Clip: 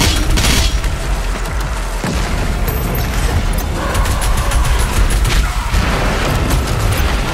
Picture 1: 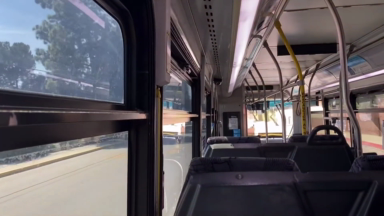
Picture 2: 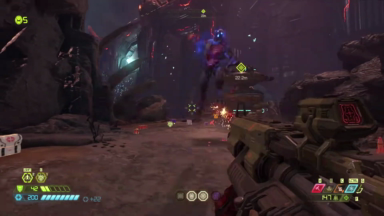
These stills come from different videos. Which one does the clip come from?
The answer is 2